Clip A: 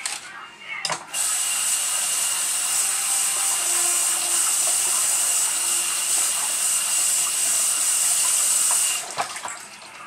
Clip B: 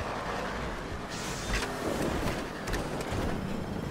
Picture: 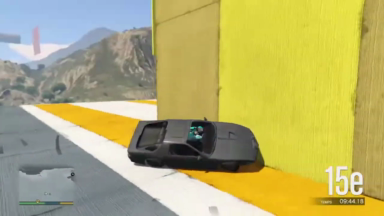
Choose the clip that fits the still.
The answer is B